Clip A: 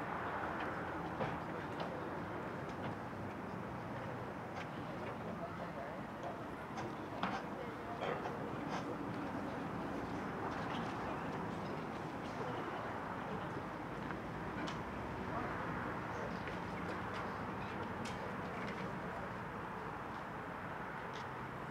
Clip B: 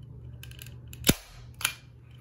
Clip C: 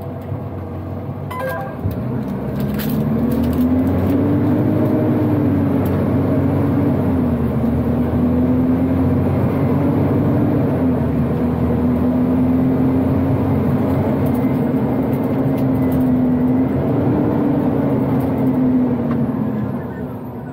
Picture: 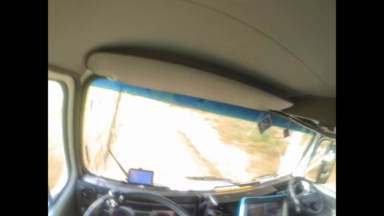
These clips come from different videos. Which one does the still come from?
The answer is C